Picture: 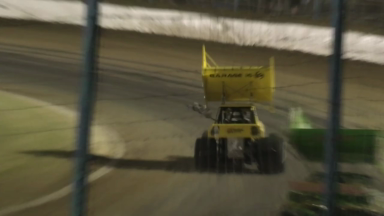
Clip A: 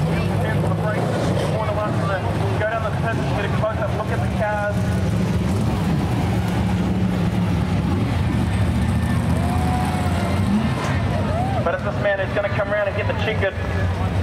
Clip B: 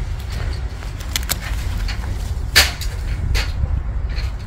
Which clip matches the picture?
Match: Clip A